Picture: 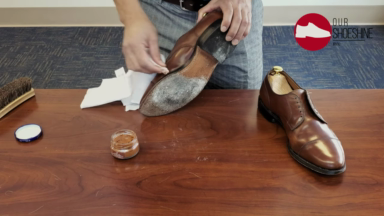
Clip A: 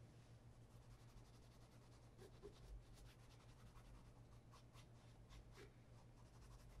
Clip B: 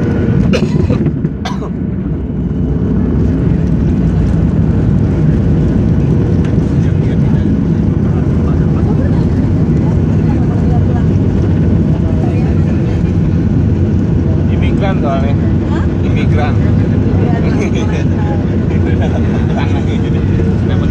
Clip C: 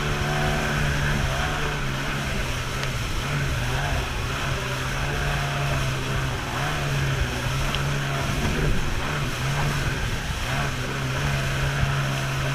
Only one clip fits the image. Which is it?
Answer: A